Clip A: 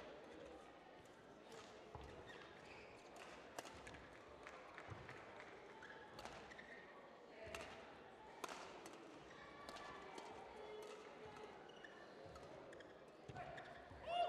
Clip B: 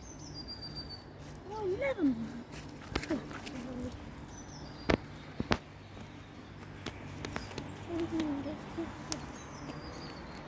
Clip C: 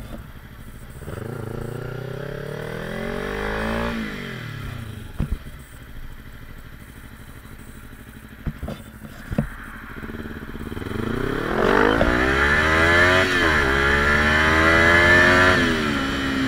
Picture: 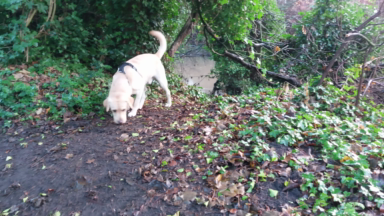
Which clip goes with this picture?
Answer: B